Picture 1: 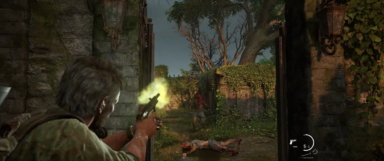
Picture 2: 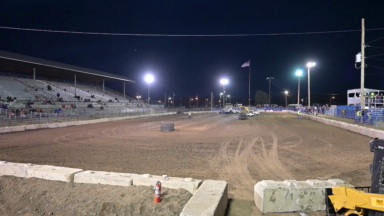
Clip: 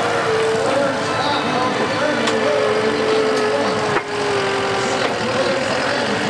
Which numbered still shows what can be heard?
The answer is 2